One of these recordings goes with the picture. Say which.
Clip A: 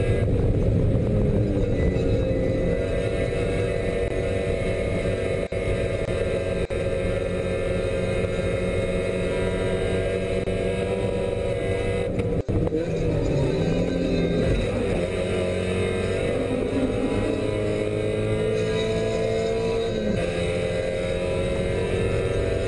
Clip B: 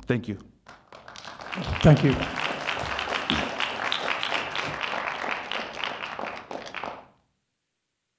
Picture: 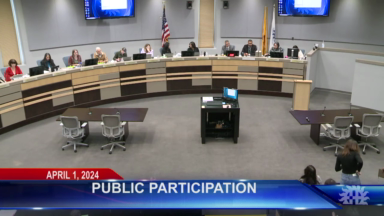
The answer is B